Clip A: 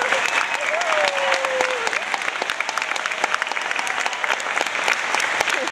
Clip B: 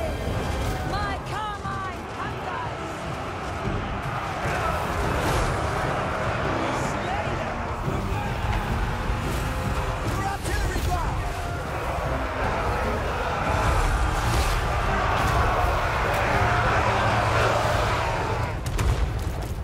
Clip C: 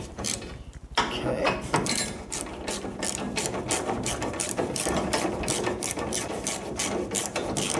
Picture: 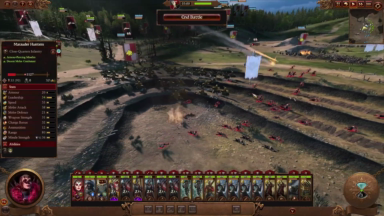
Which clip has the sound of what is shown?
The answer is B